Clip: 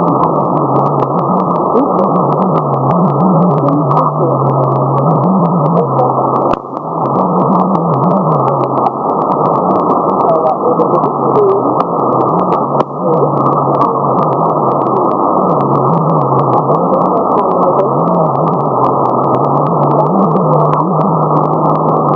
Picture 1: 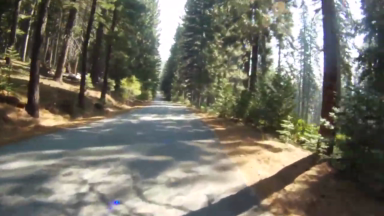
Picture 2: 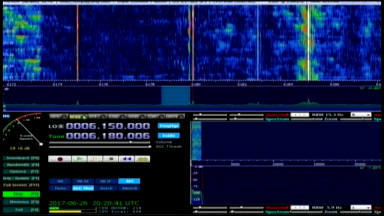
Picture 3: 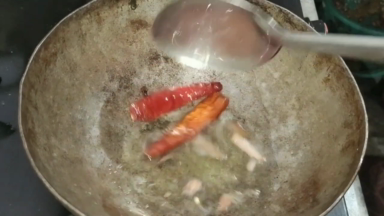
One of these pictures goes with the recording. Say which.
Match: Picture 2